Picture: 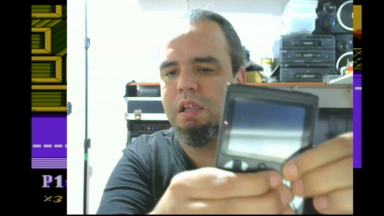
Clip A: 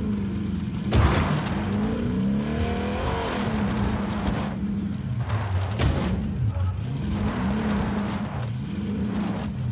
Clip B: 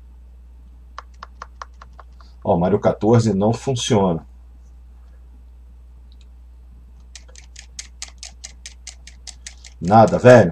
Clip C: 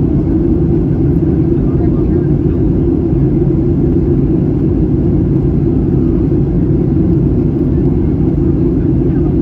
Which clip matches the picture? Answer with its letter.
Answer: B